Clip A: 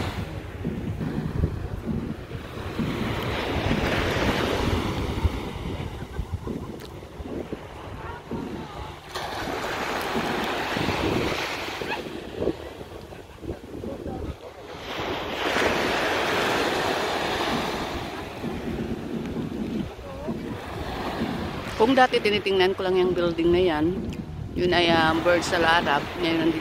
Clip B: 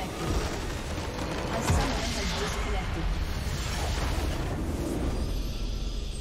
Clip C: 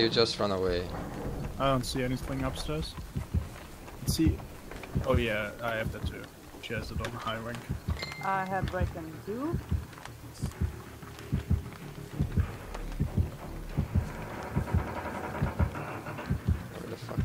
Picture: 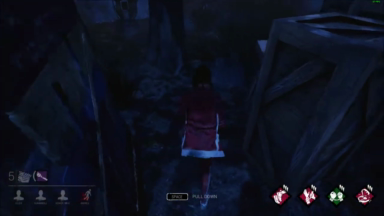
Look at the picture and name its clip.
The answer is C